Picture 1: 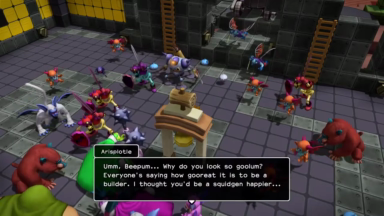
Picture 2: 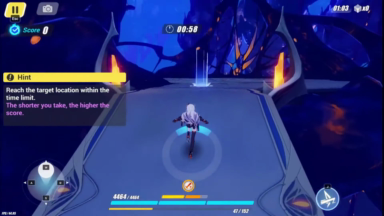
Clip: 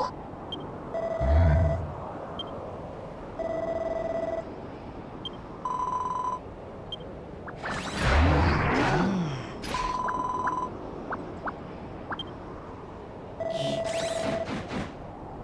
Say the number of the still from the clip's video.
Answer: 1